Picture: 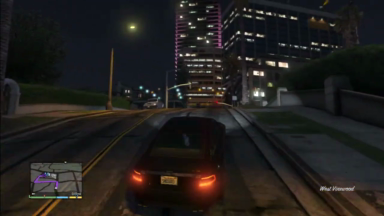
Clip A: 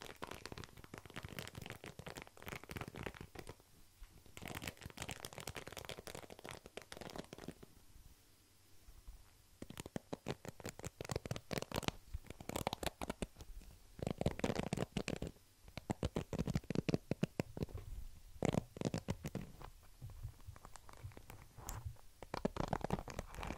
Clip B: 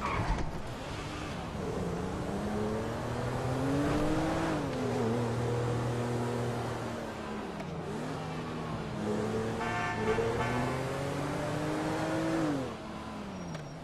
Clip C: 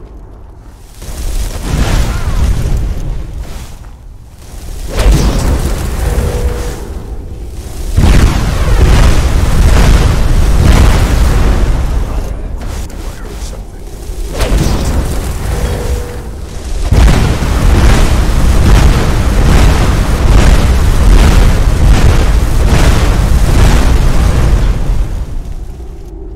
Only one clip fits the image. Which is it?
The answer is B